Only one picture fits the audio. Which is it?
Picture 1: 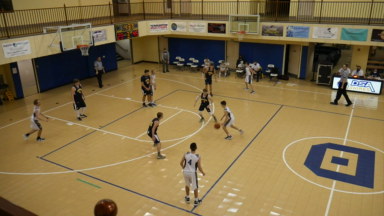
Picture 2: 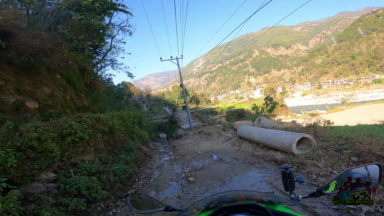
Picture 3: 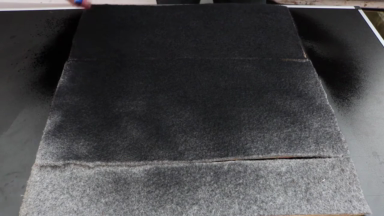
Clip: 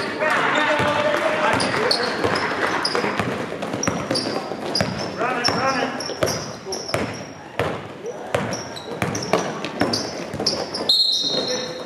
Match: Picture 1